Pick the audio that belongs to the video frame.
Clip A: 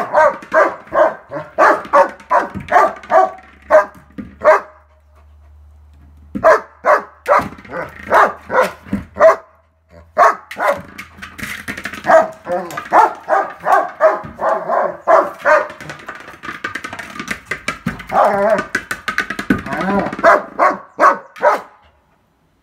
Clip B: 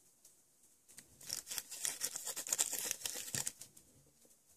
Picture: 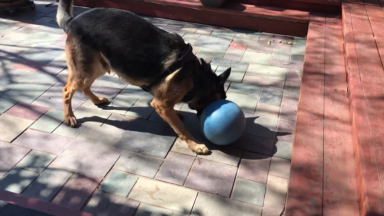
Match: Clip A